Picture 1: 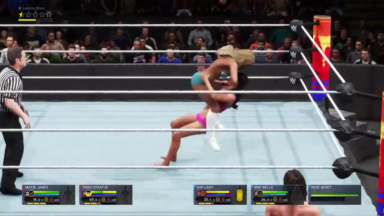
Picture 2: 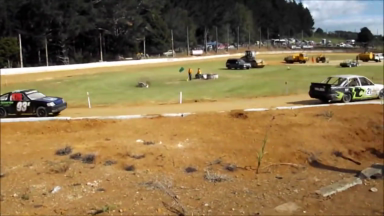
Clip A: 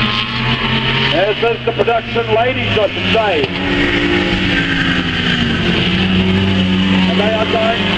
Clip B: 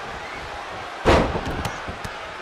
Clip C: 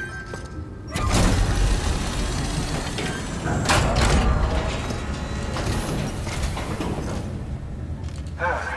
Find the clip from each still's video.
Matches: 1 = B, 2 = A